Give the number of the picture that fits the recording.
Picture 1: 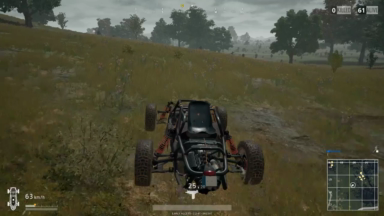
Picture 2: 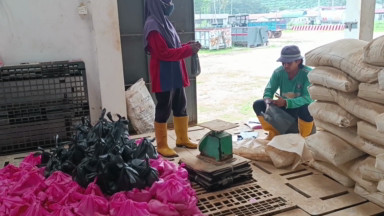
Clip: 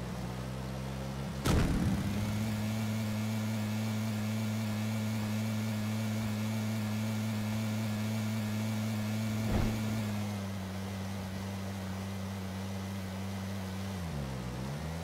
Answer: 1